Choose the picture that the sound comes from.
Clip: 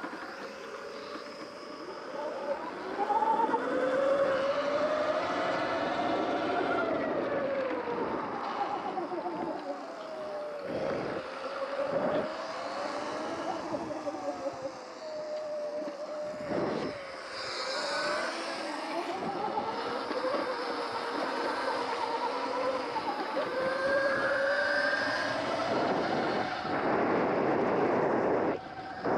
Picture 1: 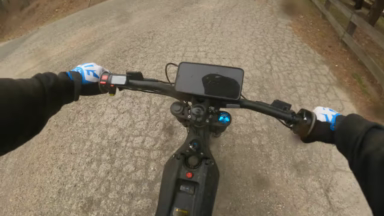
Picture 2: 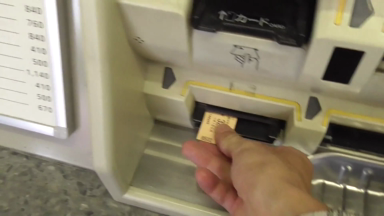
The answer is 1